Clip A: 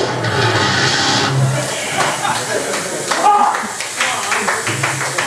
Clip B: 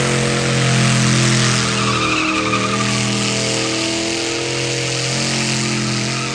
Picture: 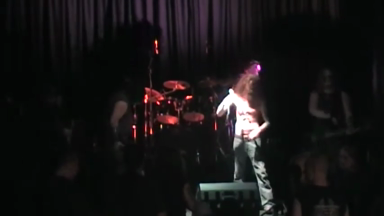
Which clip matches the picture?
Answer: A